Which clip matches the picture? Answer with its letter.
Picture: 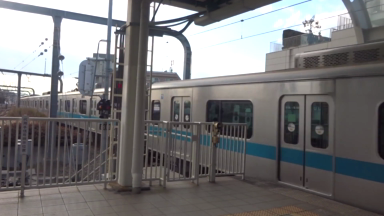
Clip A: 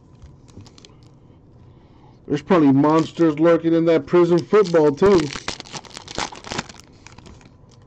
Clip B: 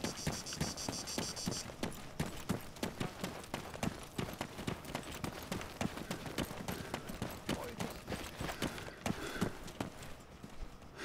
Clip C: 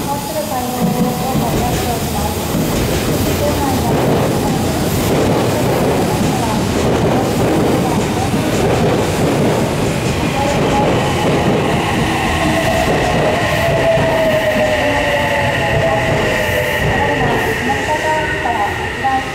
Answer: C